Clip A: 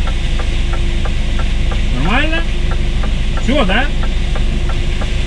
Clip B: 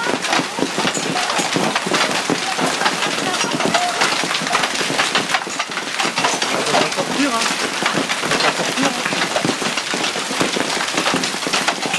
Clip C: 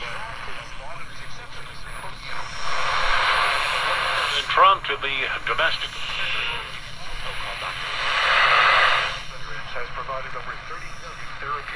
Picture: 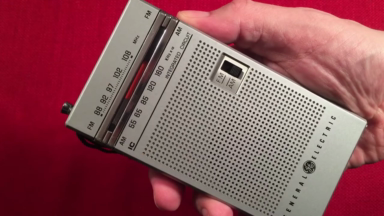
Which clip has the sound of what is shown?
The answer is C